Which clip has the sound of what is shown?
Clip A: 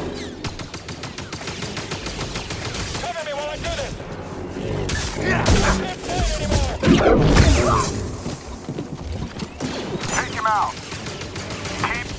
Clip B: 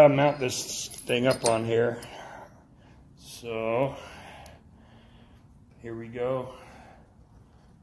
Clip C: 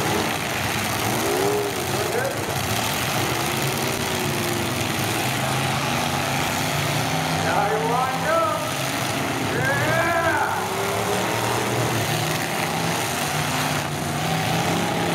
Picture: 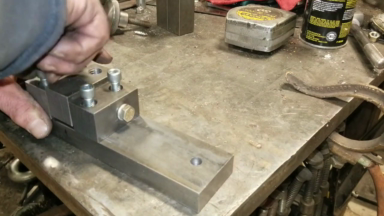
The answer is B